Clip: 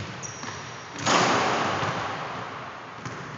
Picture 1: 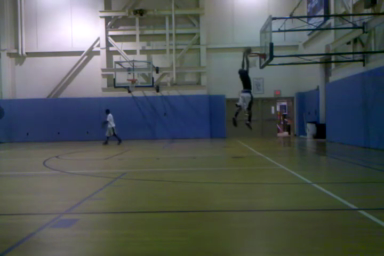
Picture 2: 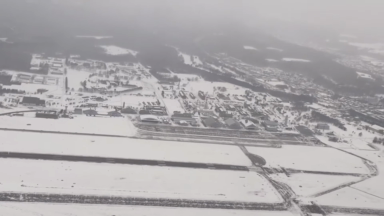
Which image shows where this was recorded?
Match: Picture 1